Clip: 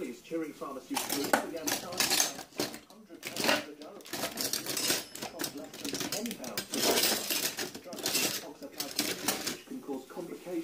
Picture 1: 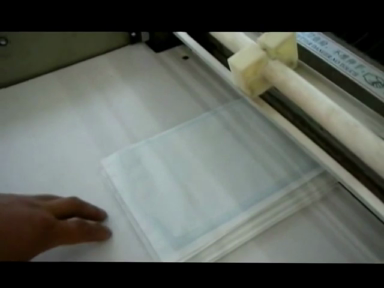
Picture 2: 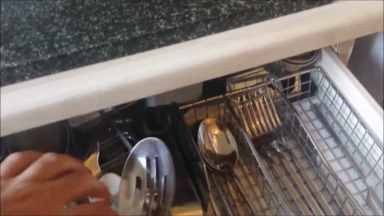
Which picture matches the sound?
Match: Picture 2